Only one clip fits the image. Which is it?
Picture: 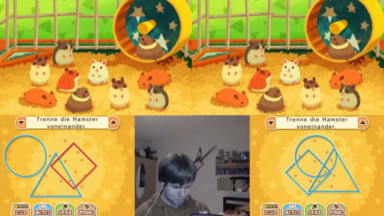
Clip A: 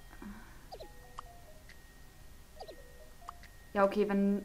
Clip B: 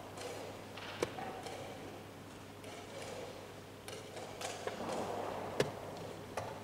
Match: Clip A